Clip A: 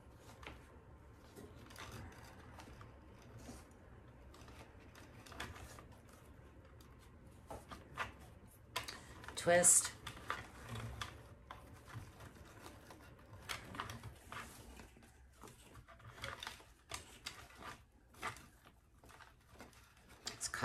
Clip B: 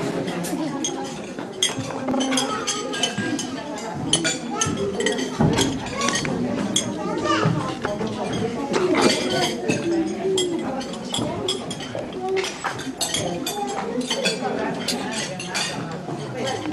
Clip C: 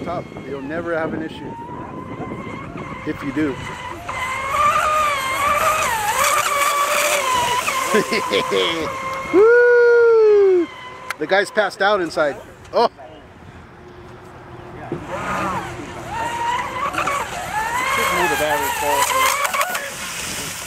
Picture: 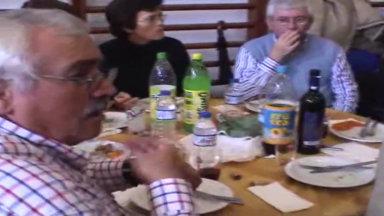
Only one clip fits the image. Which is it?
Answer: B